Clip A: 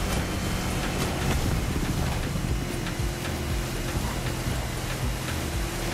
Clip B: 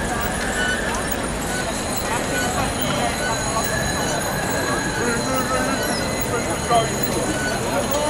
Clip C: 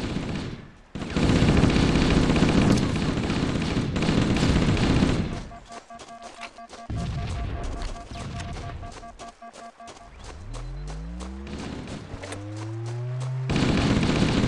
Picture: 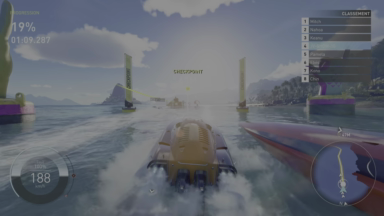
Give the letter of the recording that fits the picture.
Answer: A